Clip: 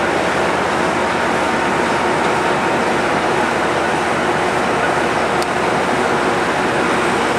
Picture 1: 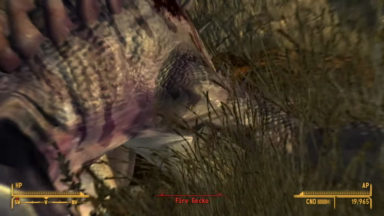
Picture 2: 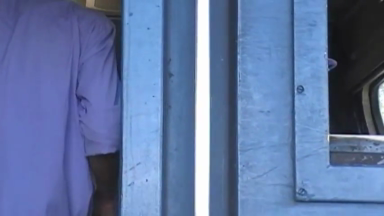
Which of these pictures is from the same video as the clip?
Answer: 2